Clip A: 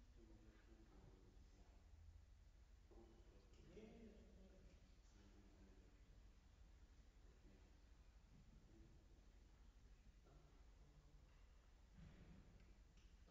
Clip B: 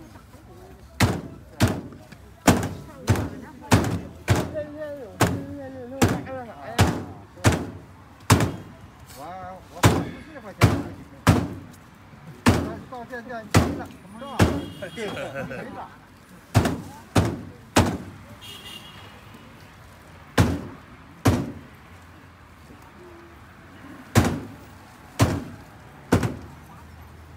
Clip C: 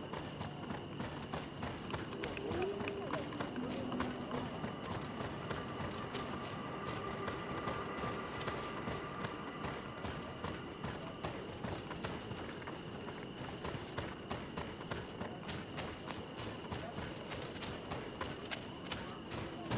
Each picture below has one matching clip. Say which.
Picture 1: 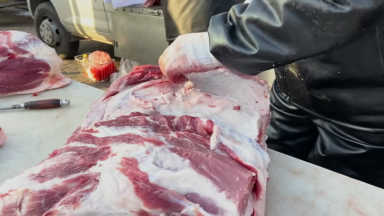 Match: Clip B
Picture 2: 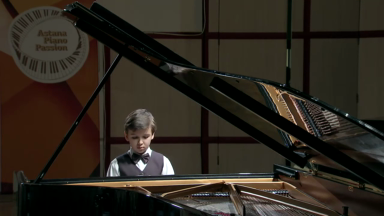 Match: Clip A